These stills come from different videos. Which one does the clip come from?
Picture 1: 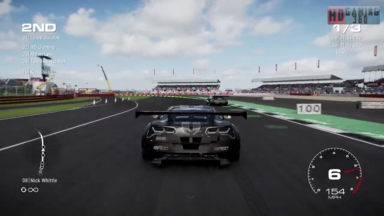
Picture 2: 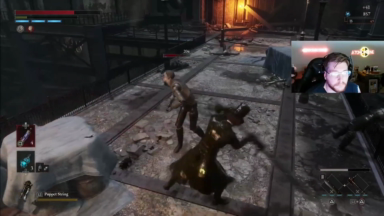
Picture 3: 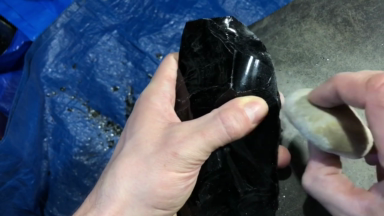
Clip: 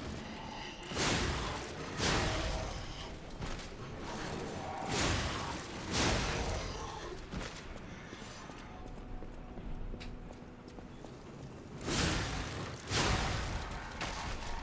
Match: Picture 2